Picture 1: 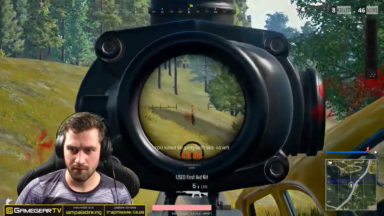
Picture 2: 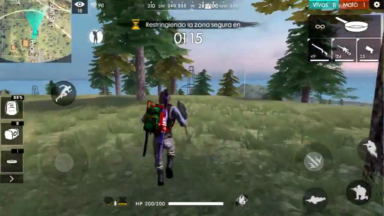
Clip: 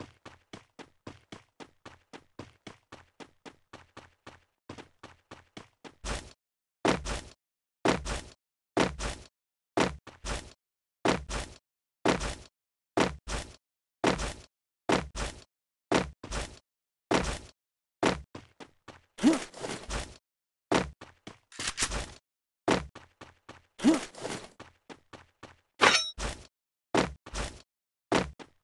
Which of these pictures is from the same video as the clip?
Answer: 2